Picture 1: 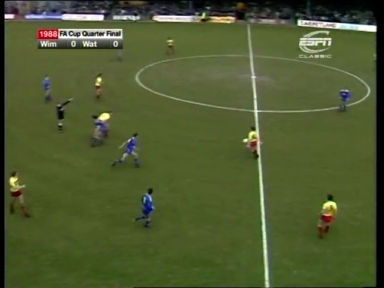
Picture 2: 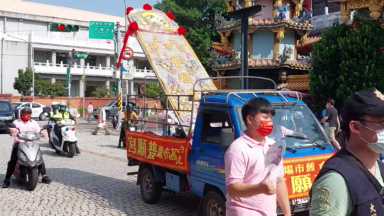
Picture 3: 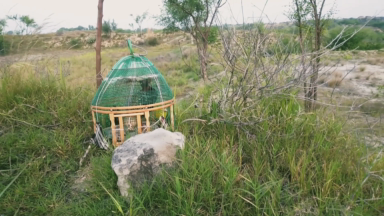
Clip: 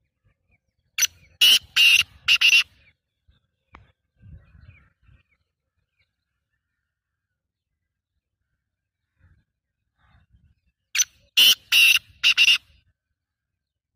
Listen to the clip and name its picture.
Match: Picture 3